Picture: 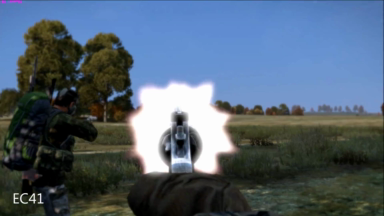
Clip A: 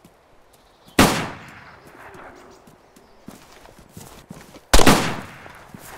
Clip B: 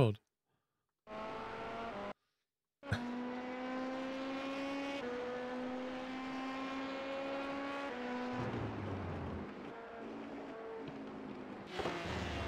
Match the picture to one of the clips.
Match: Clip A